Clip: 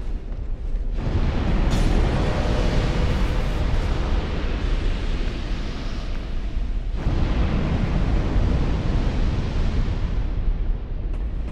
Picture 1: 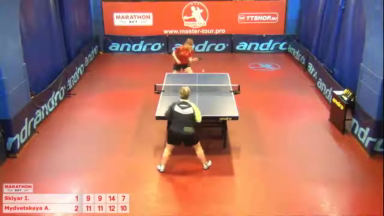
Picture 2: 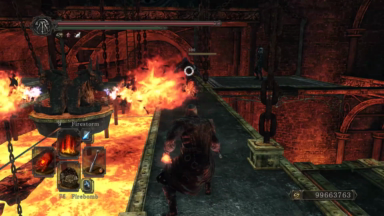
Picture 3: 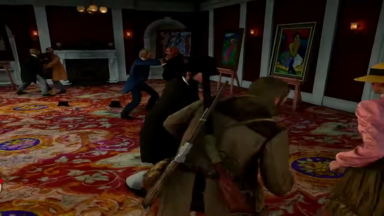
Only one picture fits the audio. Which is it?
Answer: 2